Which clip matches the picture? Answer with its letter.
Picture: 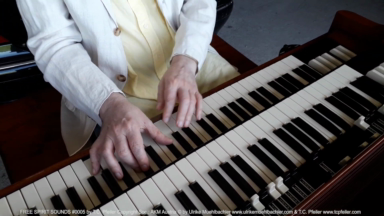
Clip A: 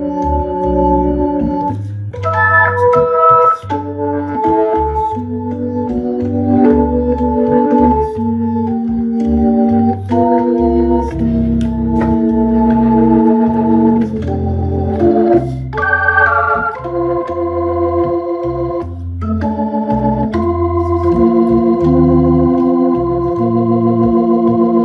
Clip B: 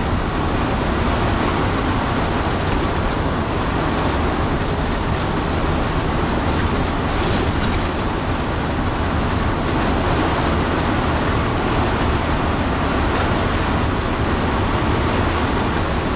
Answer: A